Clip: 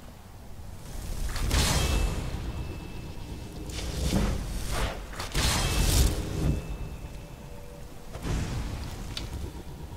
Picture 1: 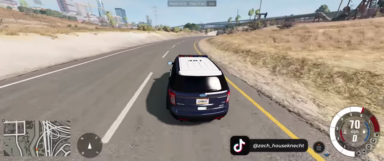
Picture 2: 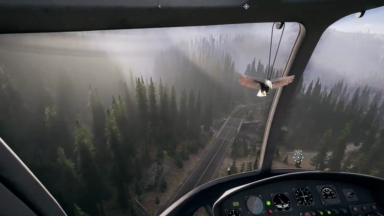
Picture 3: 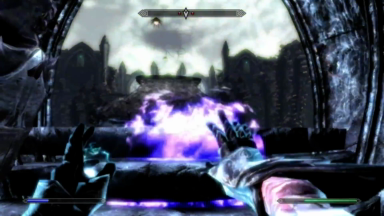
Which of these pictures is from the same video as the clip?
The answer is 3